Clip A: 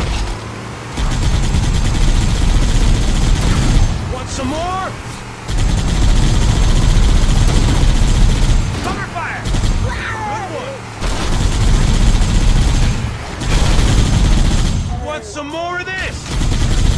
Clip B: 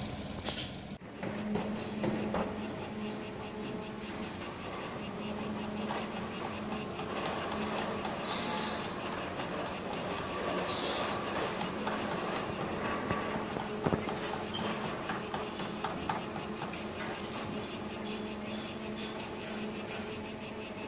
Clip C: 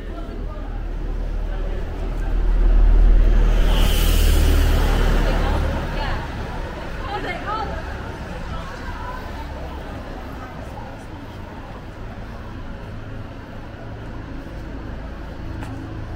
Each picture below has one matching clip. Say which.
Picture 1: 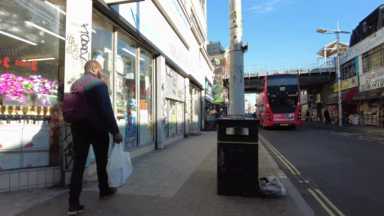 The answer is C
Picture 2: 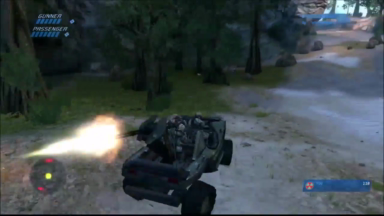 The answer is A